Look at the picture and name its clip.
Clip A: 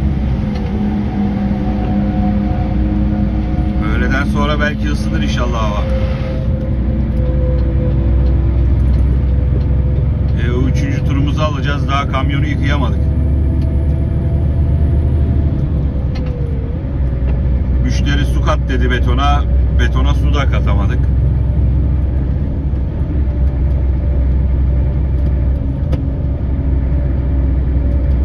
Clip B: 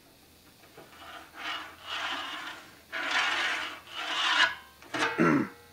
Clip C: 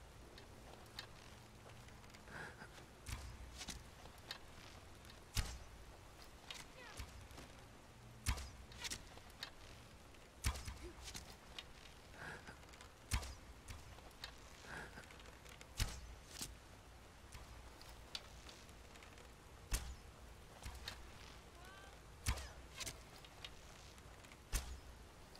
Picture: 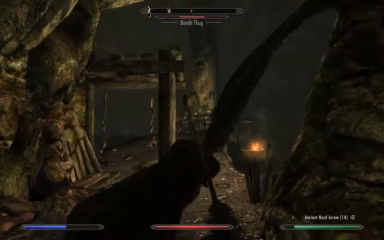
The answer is C